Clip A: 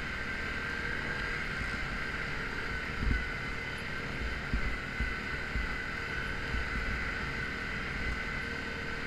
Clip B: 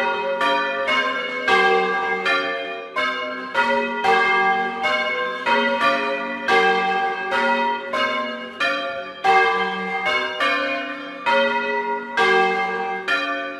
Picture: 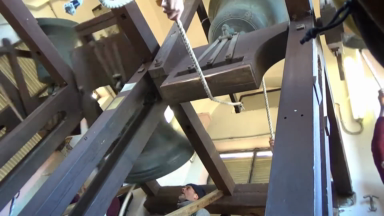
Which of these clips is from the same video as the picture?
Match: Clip B